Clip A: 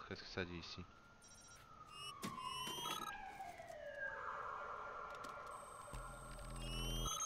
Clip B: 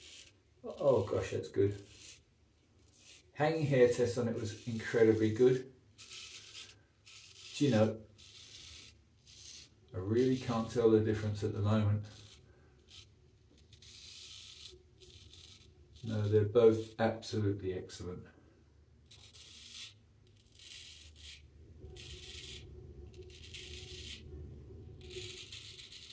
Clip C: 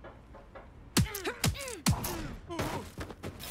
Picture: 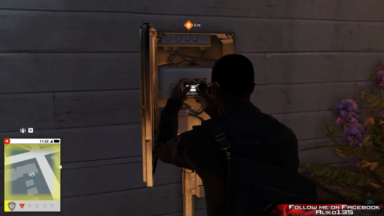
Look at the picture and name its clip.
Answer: A